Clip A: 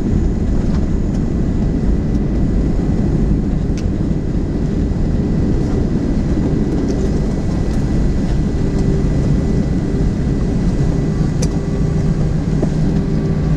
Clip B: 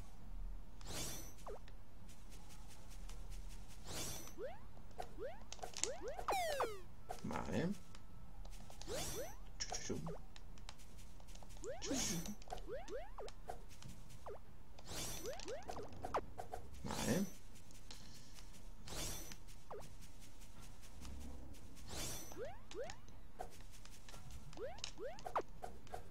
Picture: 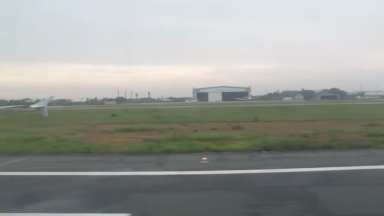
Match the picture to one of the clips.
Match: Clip A